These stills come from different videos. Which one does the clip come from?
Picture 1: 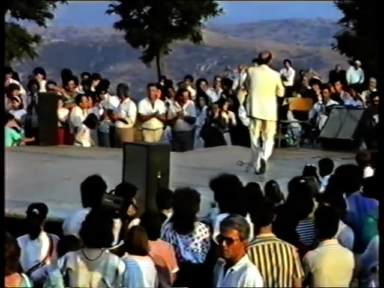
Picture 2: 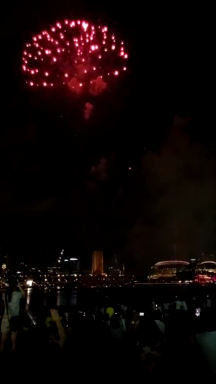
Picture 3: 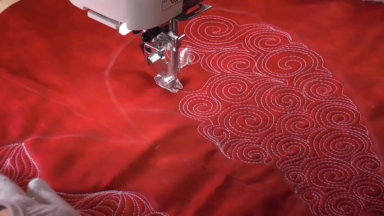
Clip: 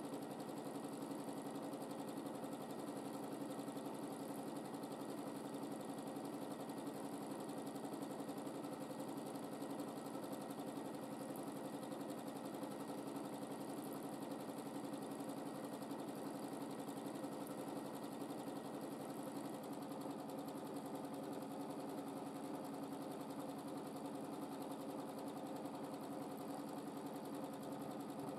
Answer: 3